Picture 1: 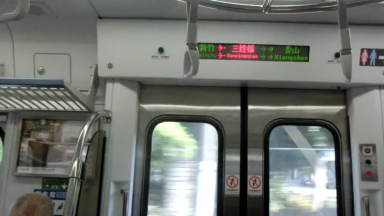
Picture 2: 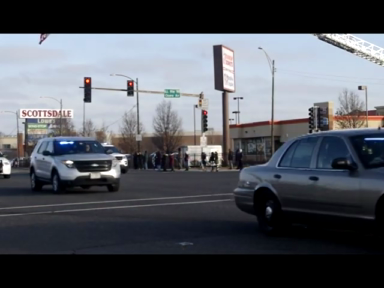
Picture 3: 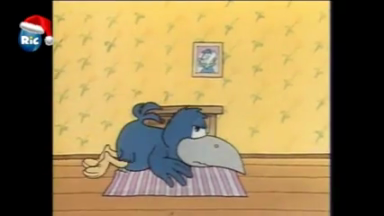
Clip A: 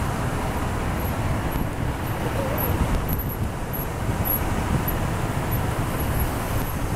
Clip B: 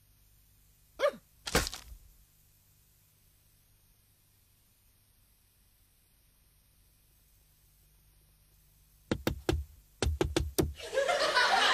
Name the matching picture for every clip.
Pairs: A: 2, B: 3